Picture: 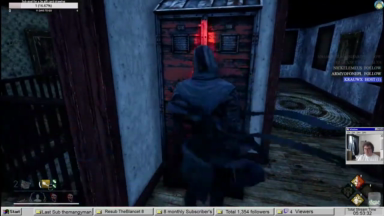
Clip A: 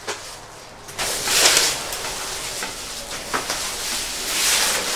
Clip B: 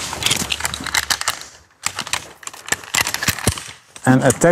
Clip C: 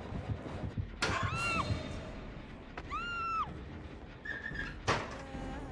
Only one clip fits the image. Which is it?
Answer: C